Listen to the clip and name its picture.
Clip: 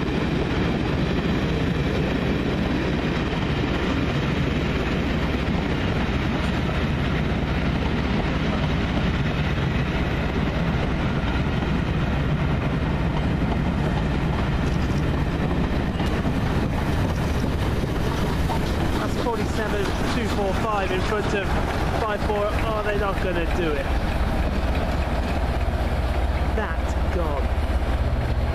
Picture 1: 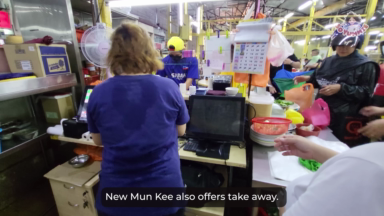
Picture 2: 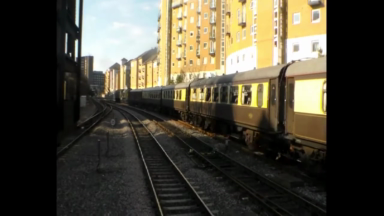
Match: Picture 2